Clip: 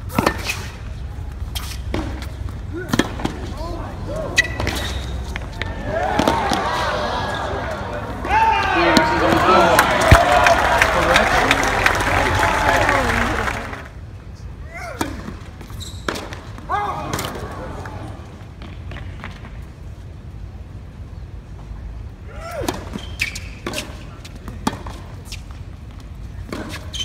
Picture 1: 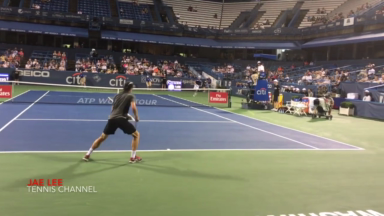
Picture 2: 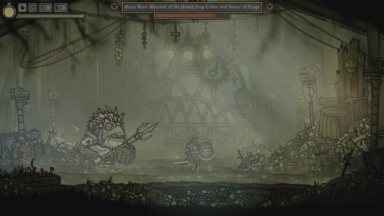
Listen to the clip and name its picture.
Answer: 1